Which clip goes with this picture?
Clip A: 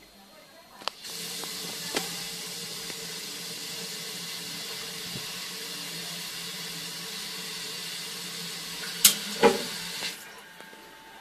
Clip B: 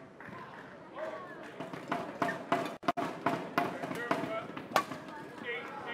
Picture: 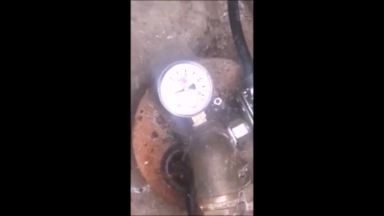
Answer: A